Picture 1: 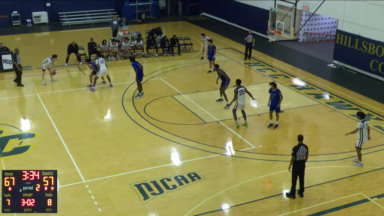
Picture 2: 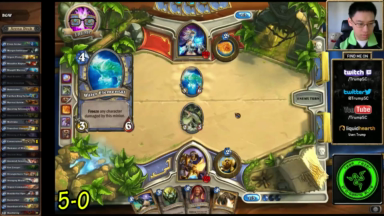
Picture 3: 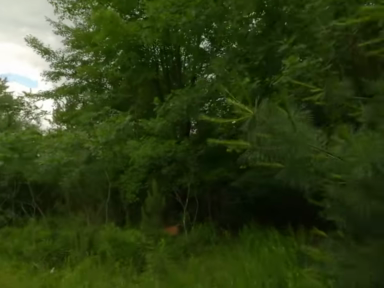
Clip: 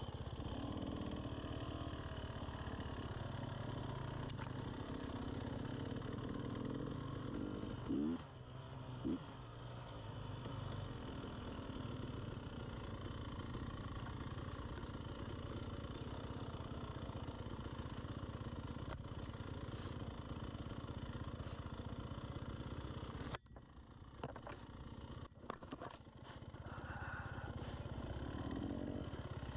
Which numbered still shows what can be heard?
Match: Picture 3